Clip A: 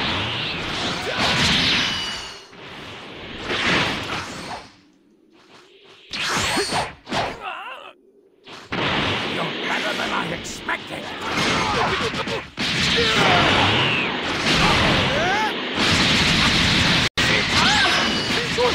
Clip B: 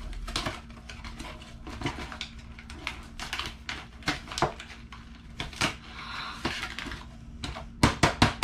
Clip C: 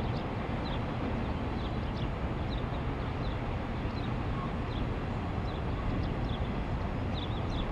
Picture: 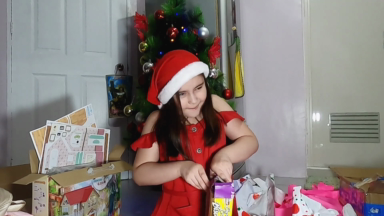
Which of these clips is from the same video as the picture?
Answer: B